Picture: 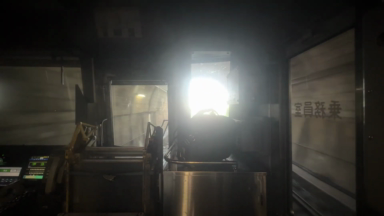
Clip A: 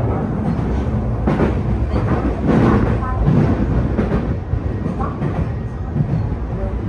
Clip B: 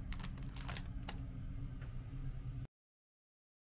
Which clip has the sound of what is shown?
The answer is A